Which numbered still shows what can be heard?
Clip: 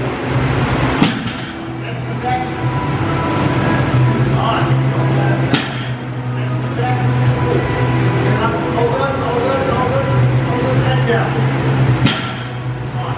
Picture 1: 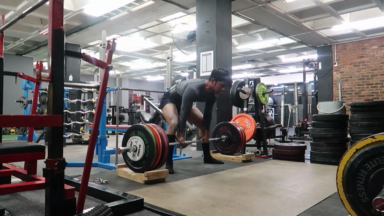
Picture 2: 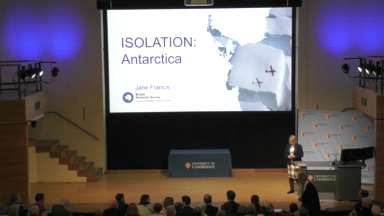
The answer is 1